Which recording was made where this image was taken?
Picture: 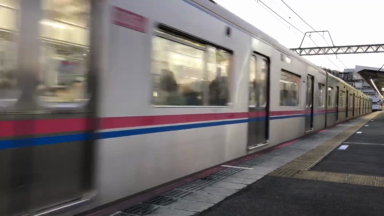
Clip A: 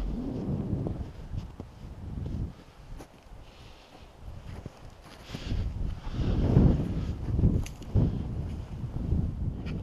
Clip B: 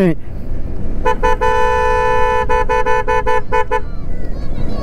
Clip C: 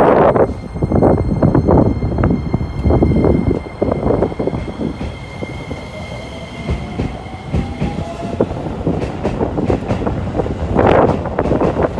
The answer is C